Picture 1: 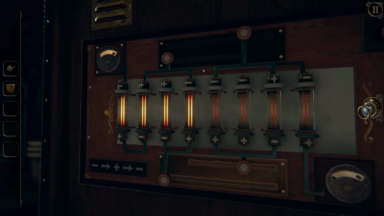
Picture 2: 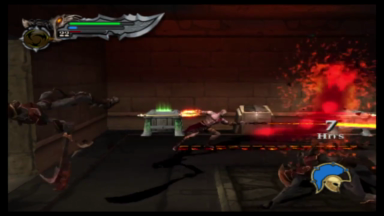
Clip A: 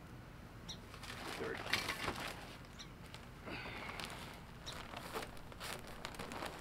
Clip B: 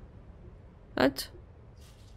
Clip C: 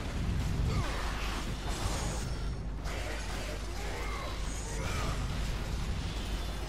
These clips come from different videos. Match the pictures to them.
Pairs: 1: B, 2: C